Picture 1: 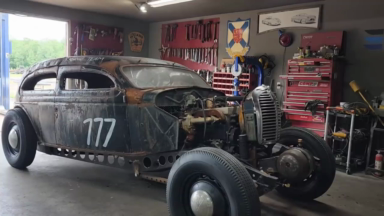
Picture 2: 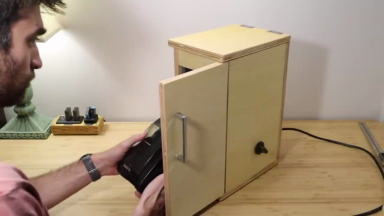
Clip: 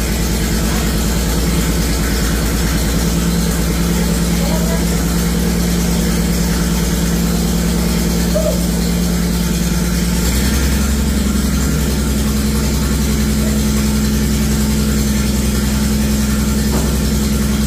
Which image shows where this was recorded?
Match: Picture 1